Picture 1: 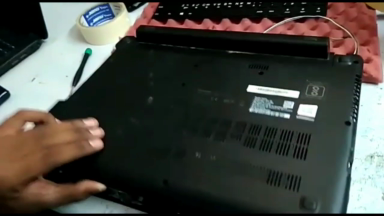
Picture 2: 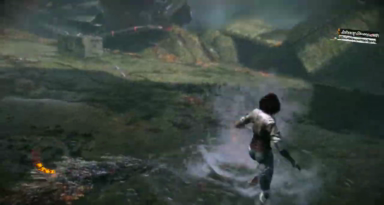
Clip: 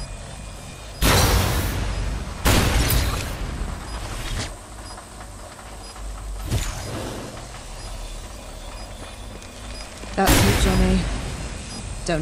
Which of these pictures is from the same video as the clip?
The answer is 2